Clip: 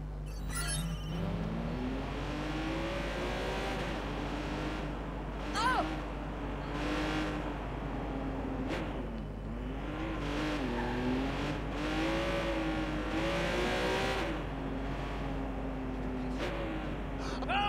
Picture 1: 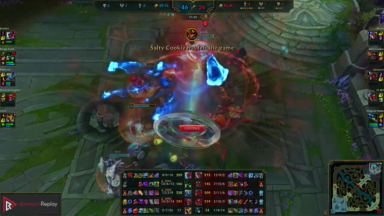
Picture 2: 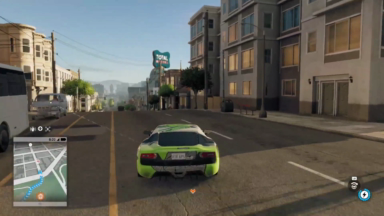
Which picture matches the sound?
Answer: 2